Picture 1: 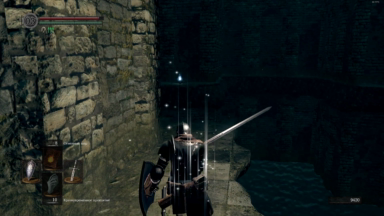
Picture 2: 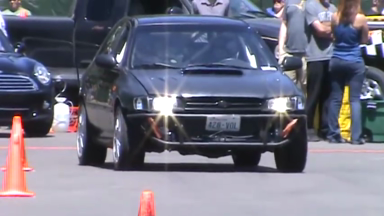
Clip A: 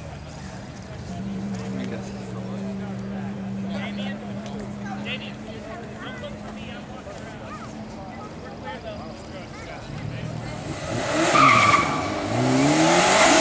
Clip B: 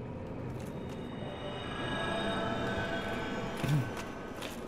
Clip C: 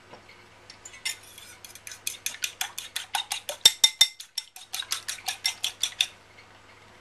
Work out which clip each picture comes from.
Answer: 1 B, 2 A